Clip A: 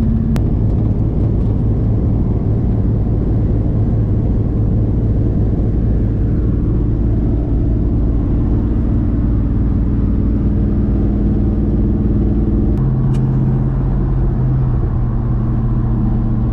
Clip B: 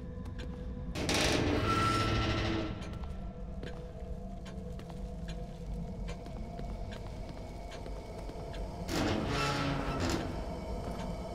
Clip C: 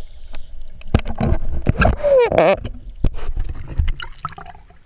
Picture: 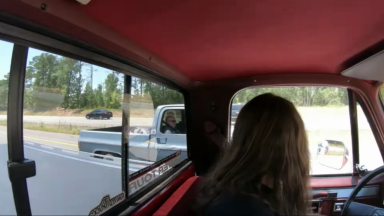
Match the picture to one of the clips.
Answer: A